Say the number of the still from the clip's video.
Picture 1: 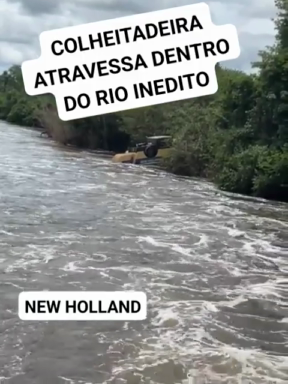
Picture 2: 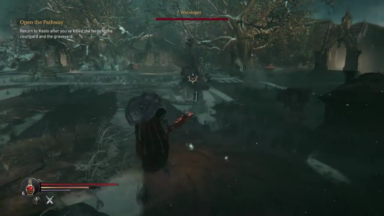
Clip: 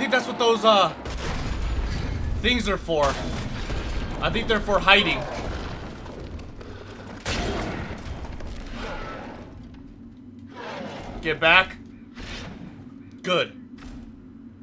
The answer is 2